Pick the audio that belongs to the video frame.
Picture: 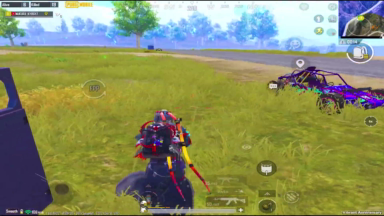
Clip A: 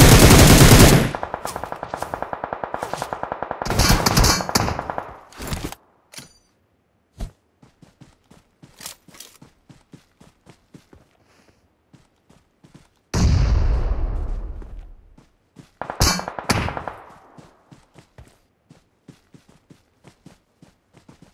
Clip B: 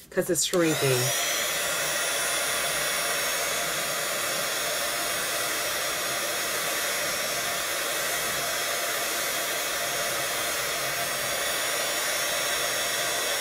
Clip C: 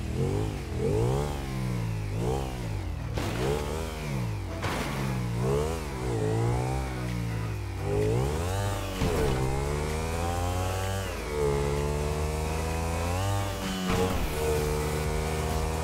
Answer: A